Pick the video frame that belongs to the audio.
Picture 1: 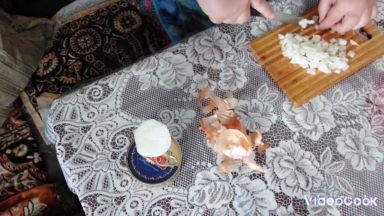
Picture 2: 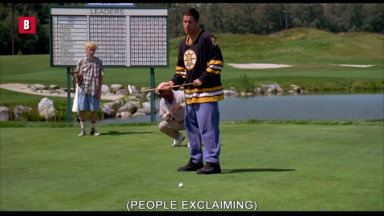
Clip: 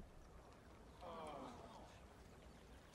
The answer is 2